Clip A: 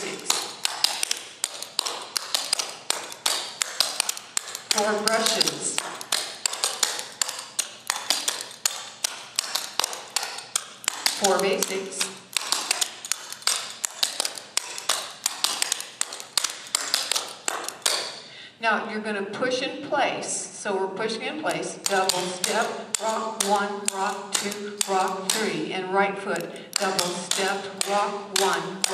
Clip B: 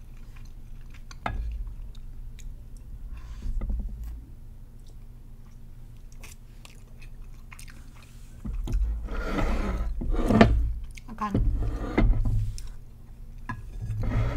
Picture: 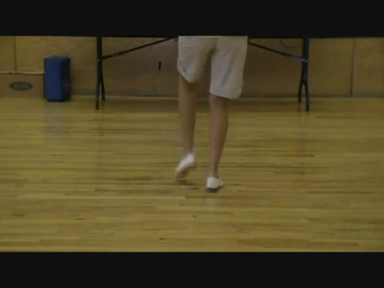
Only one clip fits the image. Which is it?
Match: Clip A